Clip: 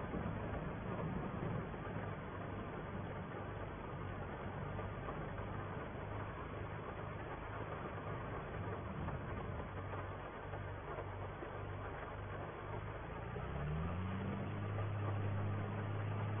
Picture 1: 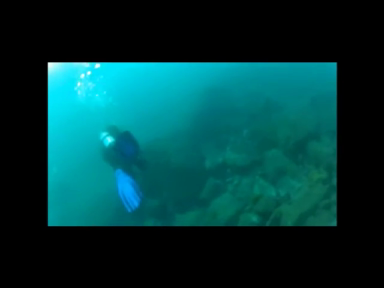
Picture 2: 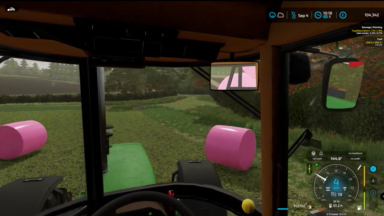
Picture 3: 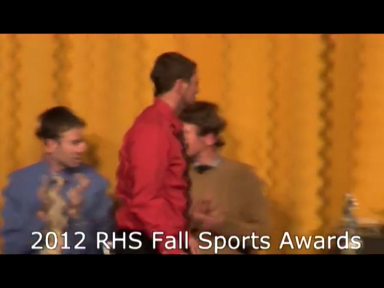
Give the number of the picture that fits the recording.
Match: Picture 2